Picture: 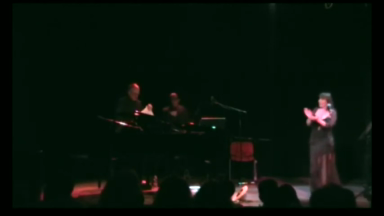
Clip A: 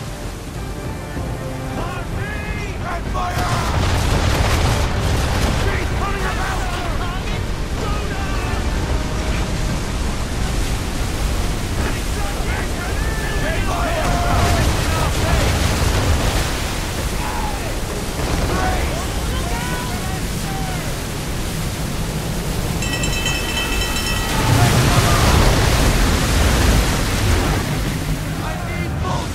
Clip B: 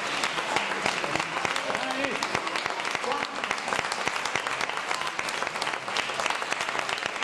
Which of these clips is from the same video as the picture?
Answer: B